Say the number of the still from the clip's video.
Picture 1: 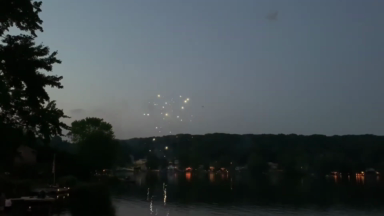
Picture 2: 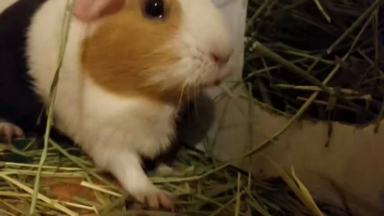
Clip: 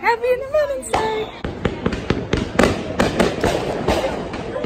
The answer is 1